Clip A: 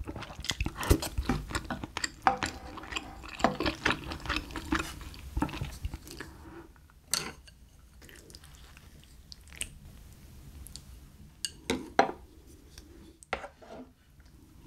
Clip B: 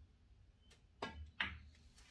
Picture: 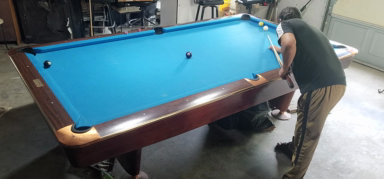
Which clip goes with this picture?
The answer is B